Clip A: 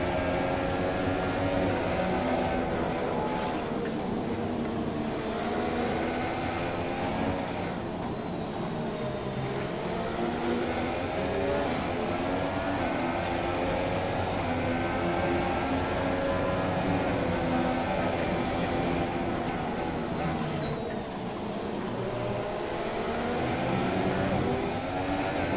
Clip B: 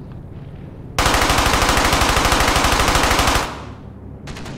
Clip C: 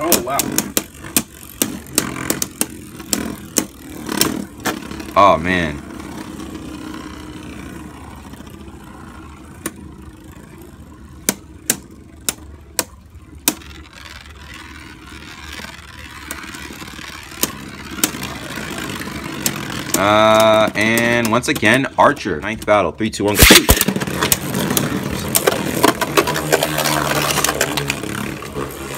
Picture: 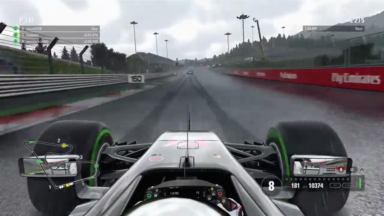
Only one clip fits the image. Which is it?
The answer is A